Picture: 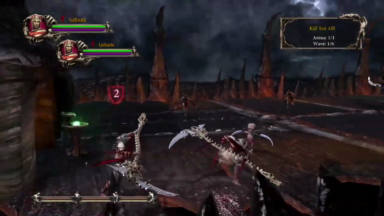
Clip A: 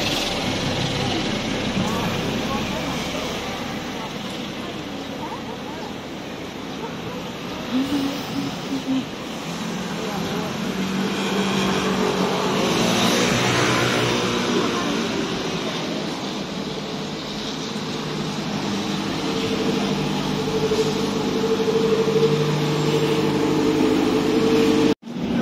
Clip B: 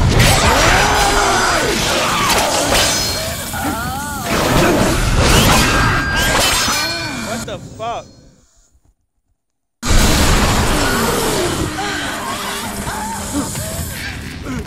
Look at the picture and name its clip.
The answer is B